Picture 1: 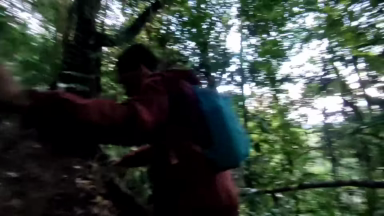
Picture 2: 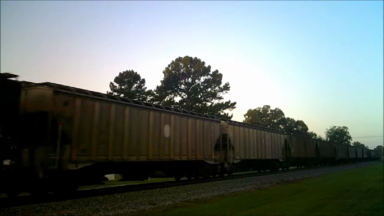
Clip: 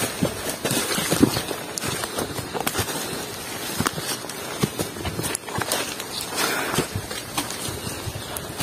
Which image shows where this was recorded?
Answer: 1